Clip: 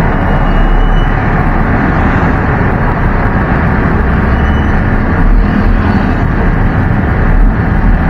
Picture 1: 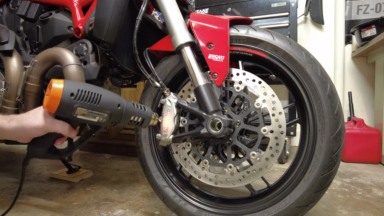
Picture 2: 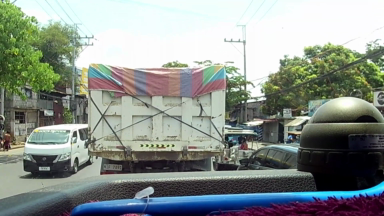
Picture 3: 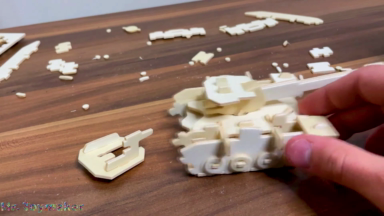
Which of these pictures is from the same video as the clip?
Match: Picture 2